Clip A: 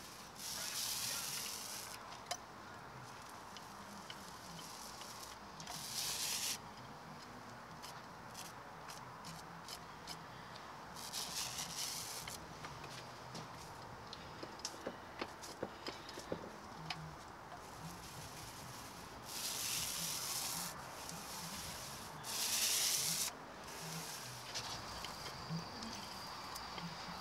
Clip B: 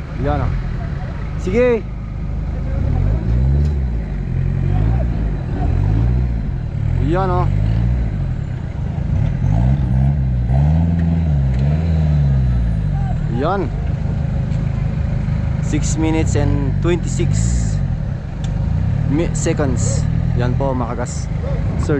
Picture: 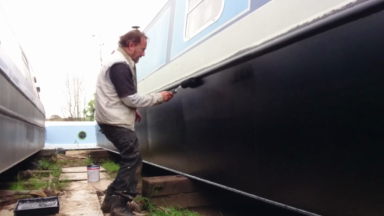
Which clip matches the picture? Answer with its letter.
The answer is A